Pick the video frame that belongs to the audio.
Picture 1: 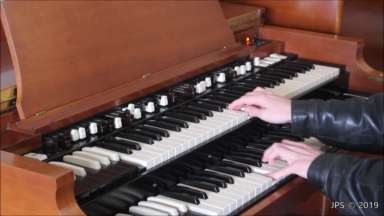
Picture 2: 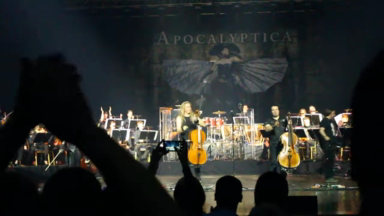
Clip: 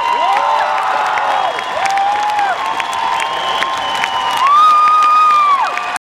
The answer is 2